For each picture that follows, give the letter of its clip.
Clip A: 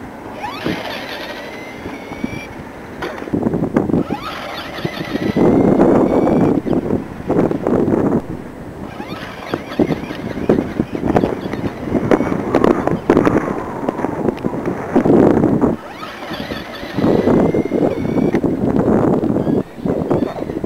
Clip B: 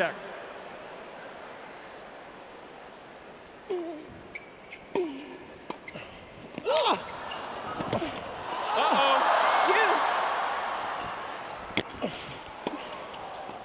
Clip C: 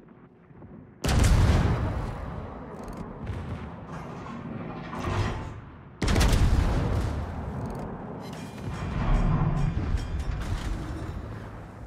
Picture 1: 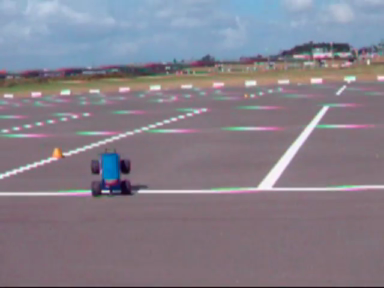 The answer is A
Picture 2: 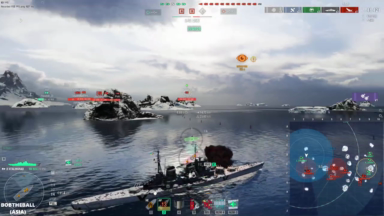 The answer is C